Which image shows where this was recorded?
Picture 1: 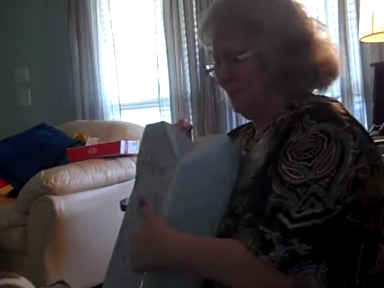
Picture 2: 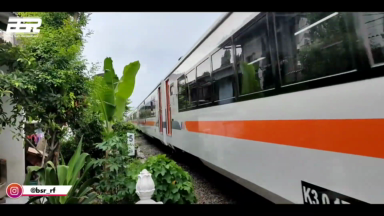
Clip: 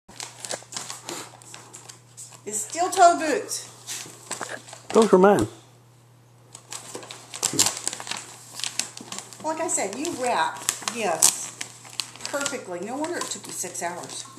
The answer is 1